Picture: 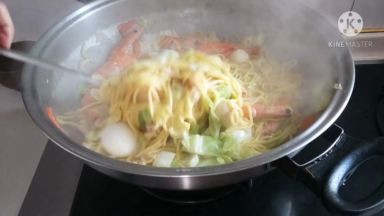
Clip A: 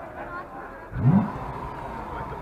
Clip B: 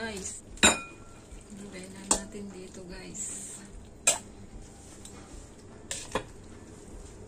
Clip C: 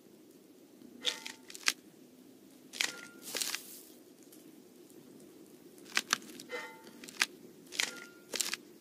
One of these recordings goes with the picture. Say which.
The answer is B